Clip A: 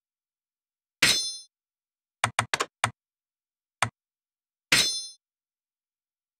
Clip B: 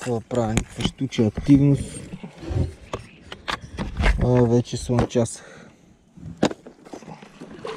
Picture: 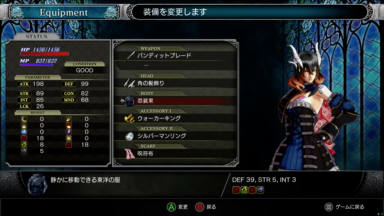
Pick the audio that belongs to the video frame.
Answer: A